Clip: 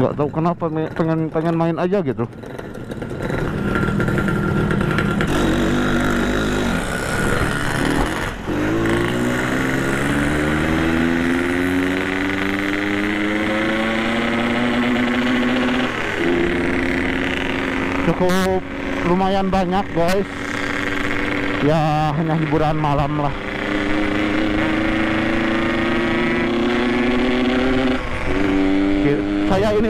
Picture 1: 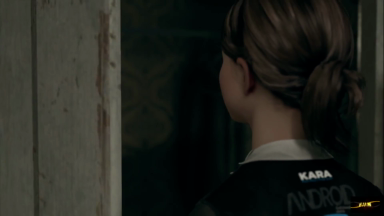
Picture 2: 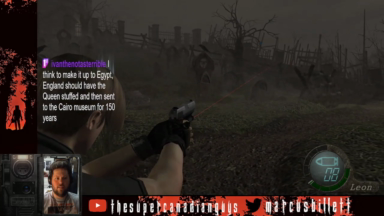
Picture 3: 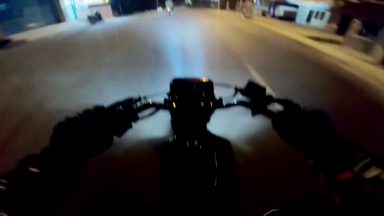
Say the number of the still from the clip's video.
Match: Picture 3